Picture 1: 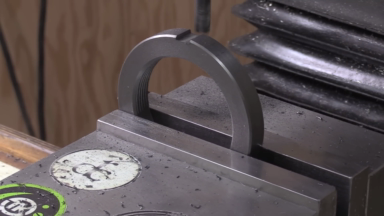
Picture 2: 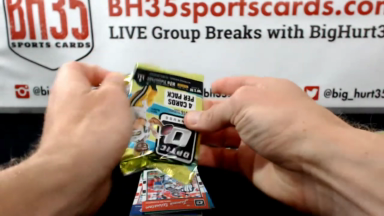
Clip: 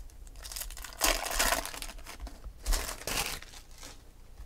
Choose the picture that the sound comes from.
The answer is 2